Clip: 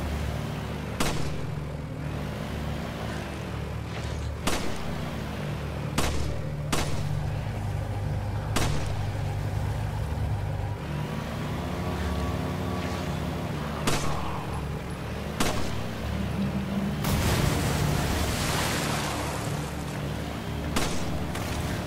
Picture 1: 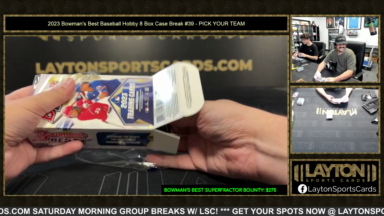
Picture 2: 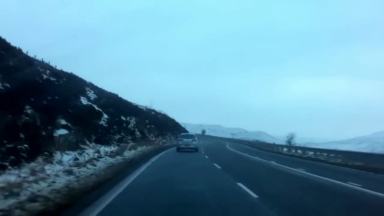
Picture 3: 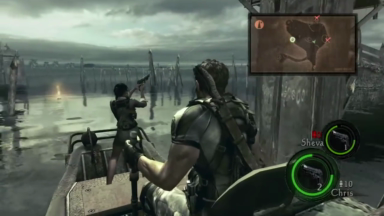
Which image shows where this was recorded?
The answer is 3